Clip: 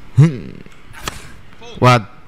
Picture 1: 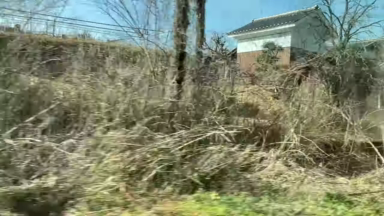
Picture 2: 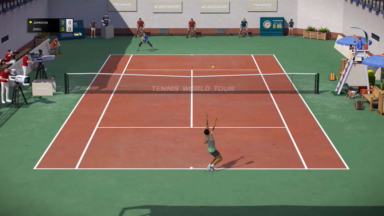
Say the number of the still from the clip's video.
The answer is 2